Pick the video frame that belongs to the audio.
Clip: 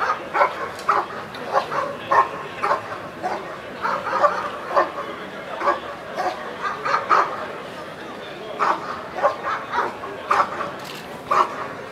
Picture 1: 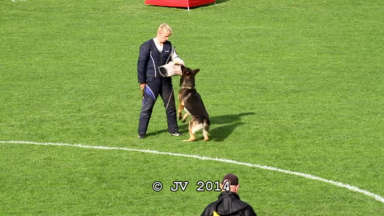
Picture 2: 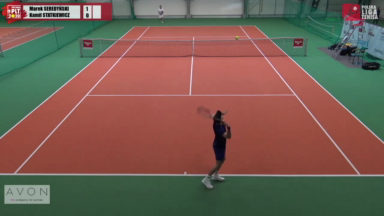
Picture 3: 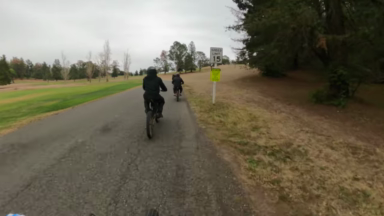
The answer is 1